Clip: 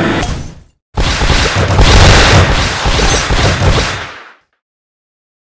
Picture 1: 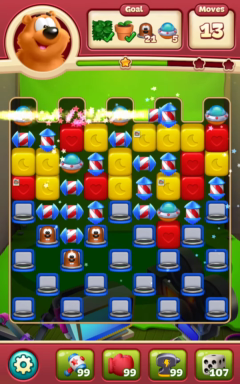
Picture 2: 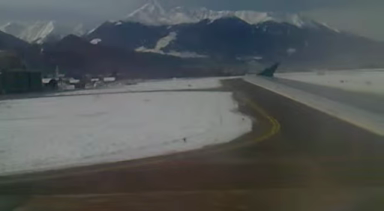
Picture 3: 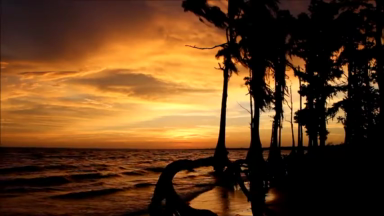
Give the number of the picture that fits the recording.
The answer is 1